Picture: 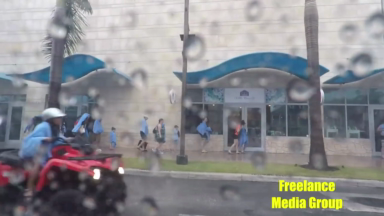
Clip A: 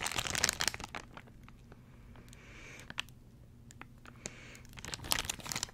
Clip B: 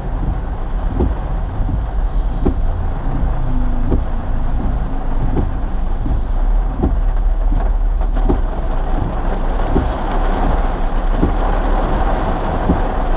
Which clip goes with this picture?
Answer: B